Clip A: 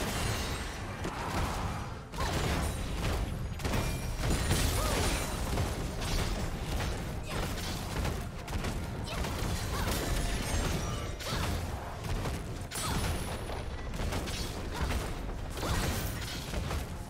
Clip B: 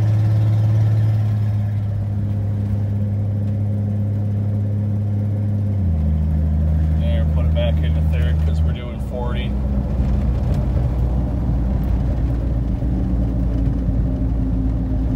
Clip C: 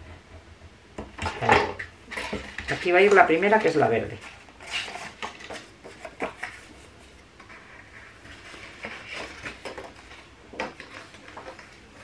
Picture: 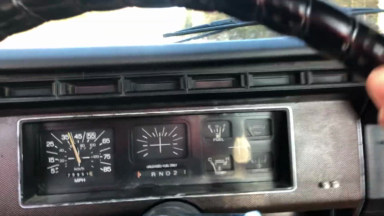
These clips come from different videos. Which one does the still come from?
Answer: B